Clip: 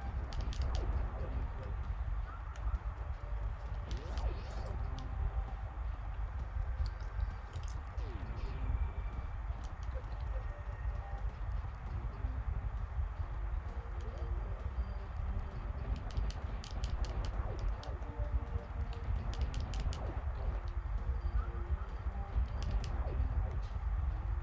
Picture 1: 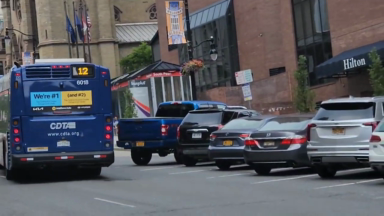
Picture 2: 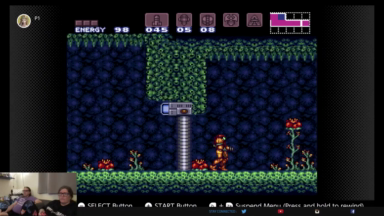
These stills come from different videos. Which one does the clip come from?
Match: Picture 2